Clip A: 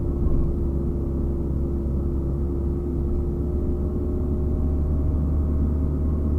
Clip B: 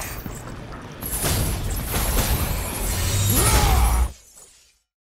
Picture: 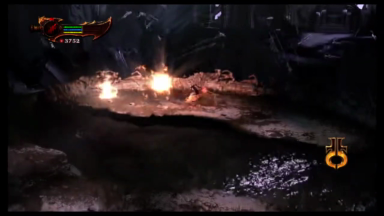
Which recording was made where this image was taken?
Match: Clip B